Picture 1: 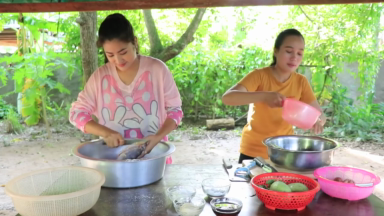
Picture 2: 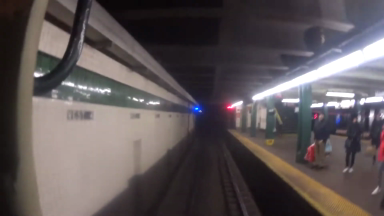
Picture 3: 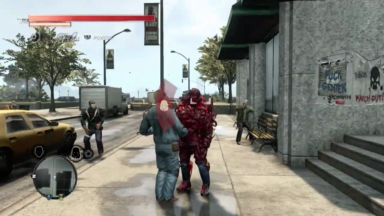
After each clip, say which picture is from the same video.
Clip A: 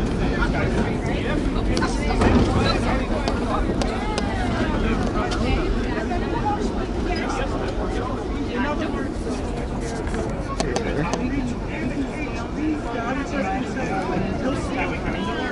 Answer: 2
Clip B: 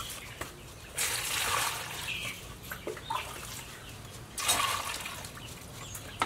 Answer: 1